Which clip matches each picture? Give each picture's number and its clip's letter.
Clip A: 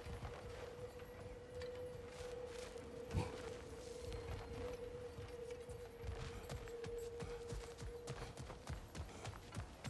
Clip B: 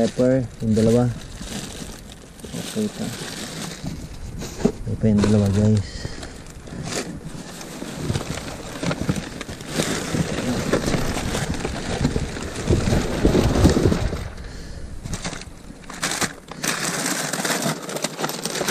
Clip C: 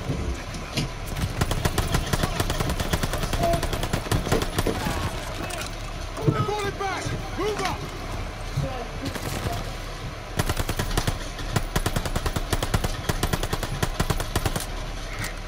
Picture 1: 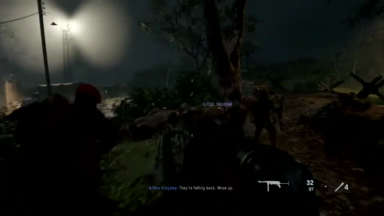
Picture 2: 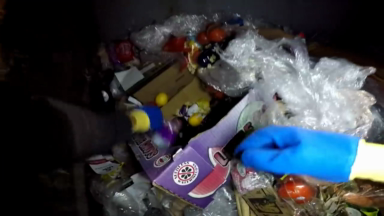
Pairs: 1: C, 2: B